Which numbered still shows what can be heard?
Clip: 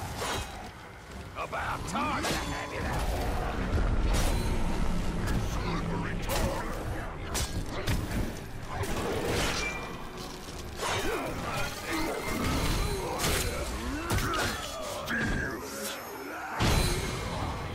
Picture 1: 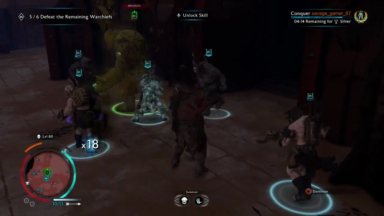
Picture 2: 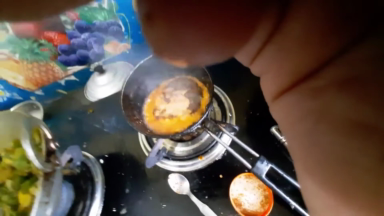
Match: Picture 1